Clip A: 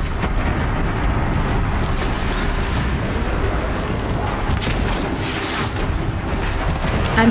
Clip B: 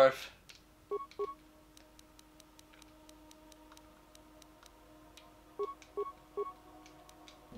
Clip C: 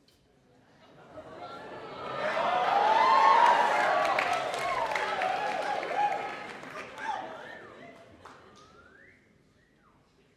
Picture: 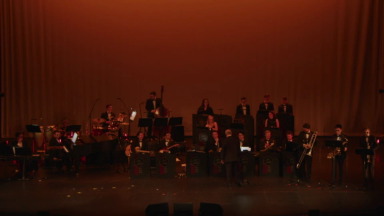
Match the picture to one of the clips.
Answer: C